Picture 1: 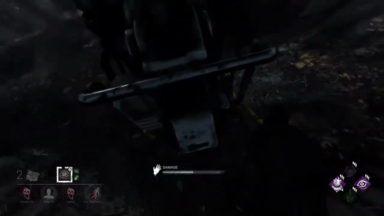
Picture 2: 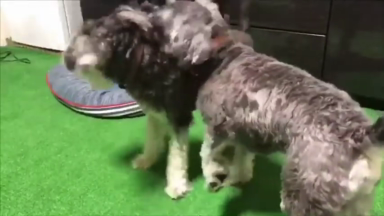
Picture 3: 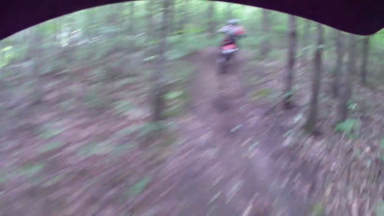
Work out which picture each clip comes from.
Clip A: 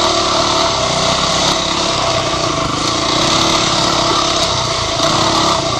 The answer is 3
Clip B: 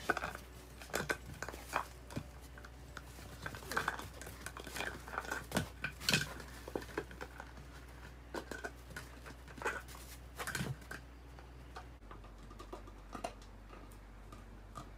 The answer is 2